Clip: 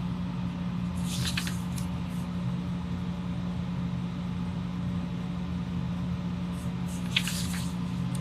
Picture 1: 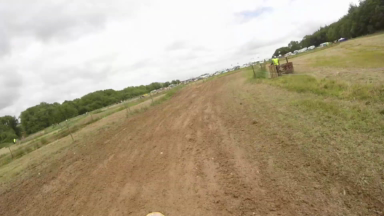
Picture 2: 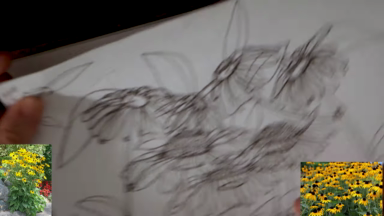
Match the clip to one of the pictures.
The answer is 2